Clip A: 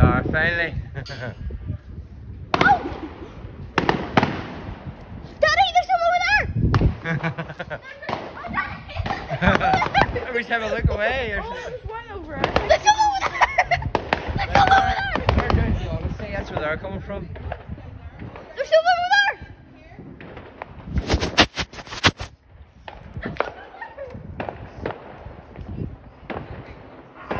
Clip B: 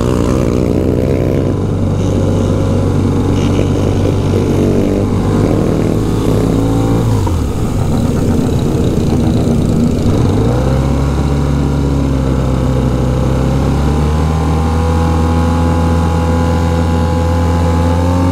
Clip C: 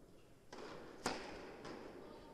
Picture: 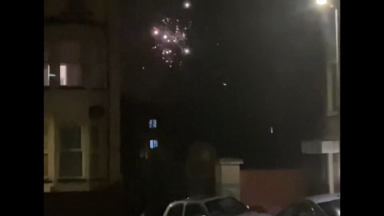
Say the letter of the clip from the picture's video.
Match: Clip A